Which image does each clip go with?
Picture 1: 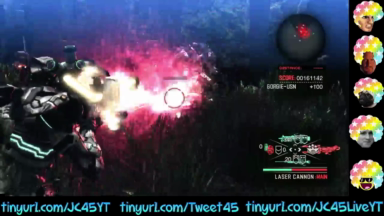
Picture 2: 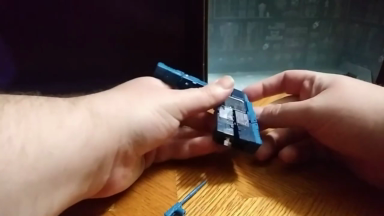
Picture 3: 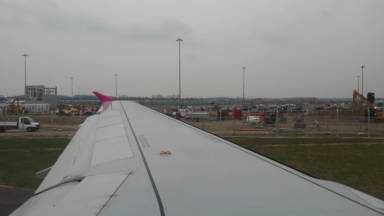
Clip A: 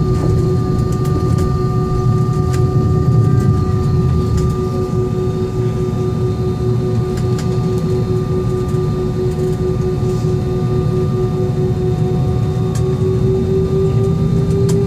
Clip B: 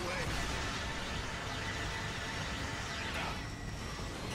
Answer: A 3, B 1